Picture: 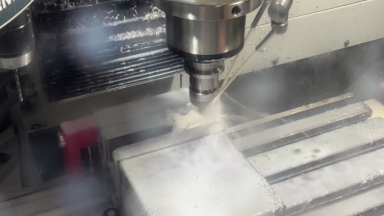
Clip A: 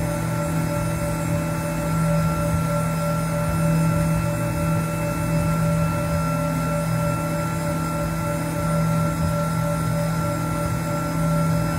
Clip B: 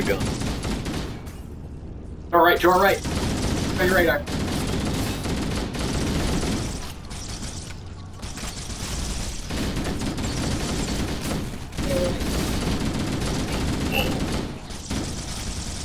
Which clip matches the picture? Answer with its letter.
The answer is A